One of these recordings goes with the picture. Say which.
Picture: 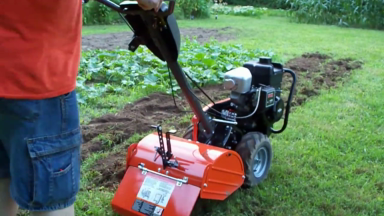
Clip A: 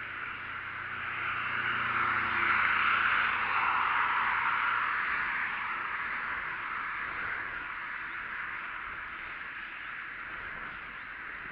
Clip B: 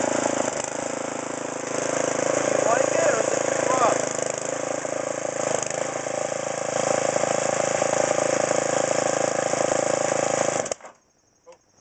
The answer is B